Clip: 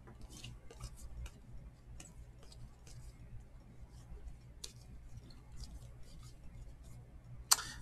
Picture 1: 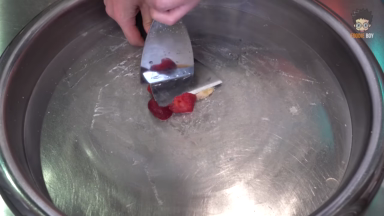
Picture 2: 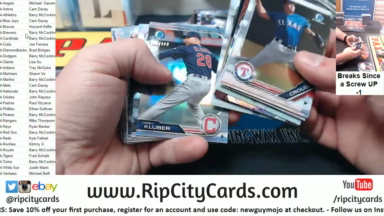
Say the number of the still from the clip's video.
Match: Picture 2